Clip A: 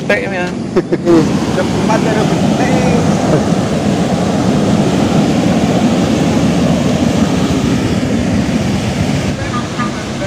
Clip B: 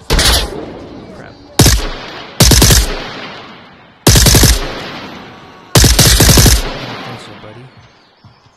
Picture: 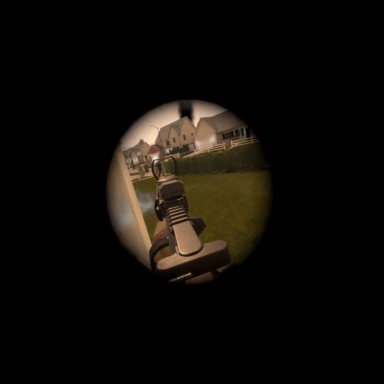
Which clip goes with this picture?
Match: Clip B